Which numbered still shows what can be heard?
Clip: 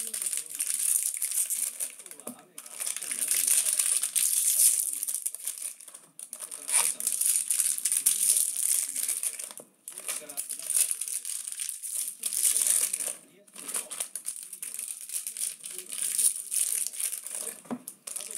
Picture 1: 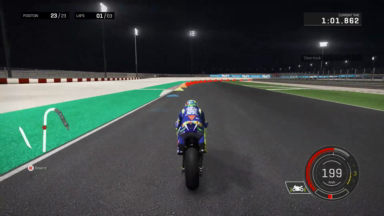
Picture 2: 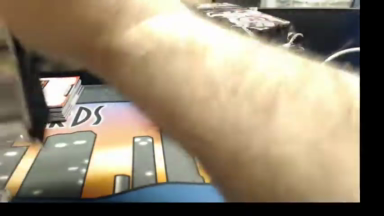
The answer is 2